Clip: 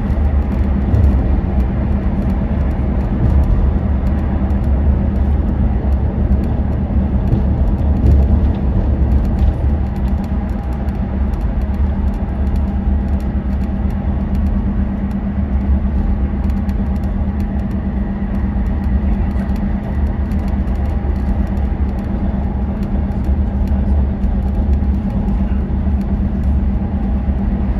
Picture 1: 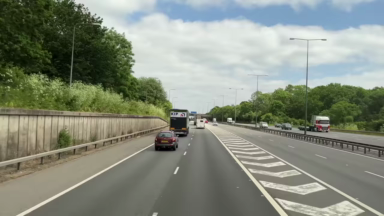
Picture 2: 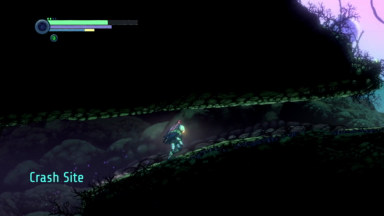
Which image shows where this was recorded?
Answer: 1